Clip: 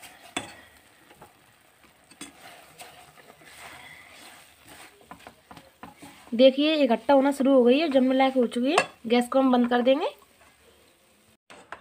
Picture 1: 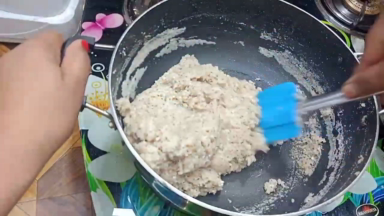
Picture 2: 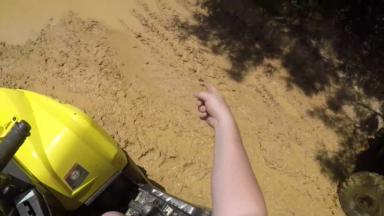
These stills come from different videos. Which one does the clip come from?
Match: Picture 1